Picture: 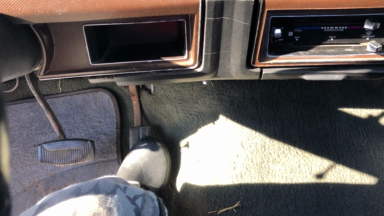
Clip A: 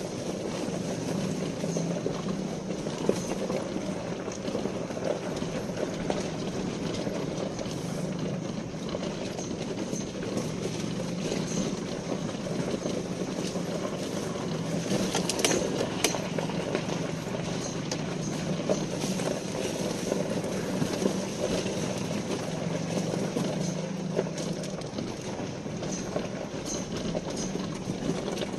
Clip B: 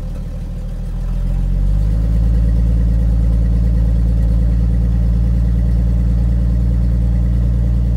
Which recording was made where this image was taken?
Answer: B